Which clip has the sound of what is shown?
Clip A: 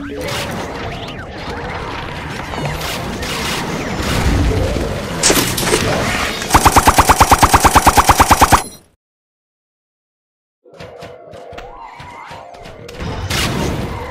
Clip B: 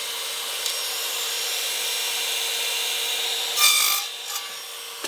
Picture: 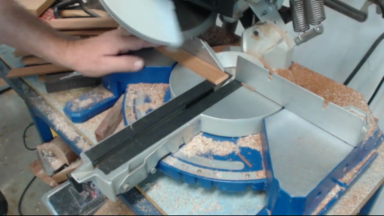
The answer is B